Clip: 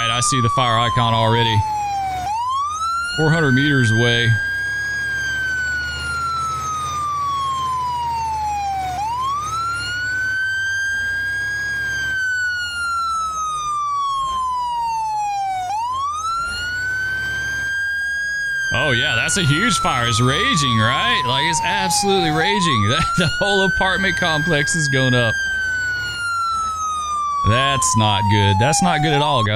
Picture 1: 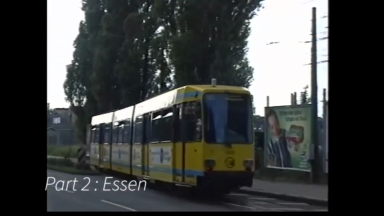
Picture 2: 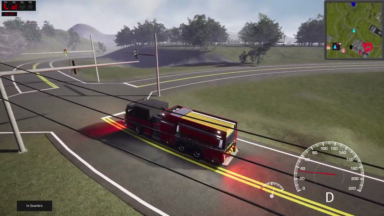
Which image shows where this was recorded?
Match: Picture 2